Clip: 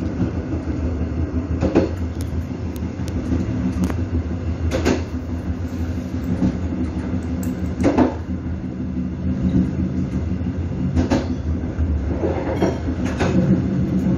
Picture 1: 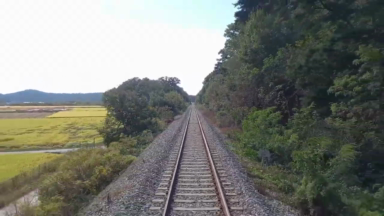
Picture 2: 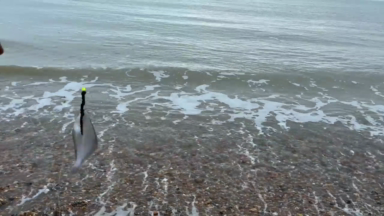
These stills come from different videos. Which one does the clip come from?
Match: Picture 1